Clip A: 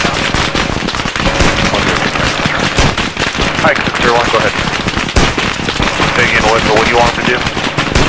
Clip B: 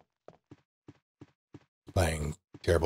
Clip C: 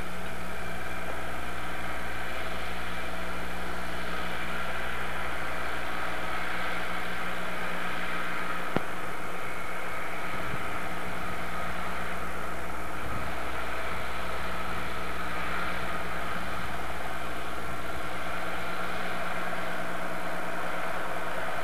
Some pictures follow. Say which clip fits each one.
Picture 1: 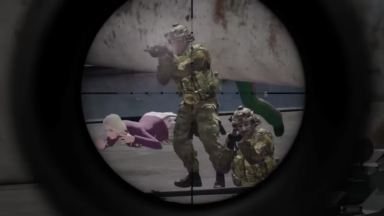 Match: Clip A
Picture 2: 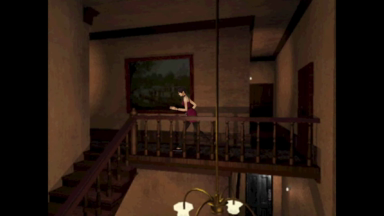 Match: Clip B